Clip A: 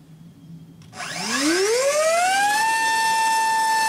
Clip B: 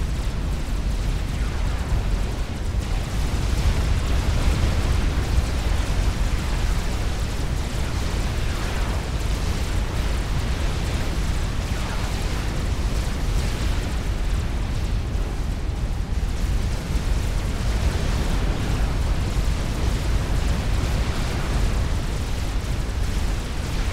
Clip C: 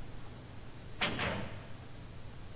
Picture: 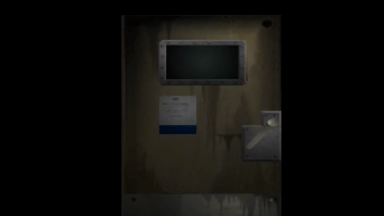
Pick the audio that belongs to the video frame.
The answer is C